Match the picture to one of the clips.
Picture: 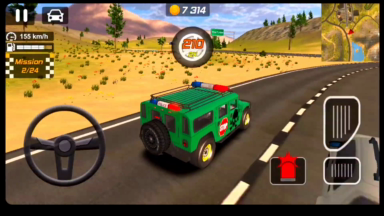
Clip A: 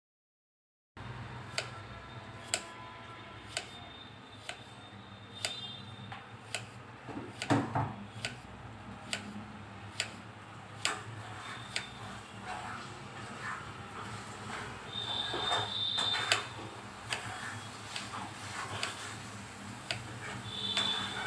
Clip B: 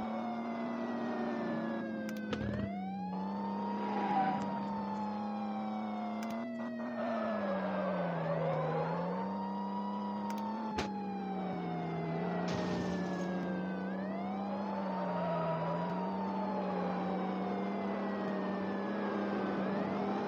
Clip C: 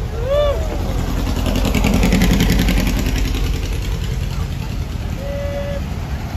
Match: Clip B